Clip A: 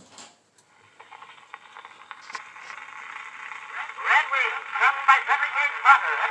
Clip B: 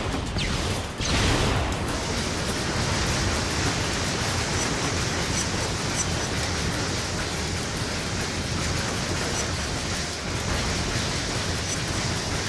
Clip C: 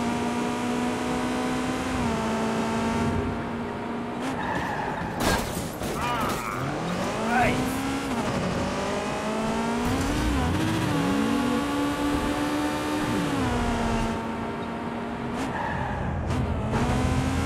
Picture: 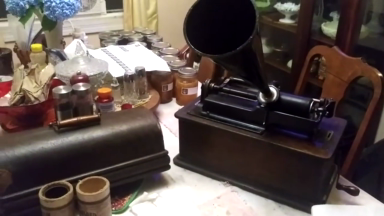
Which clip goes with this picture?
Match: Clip A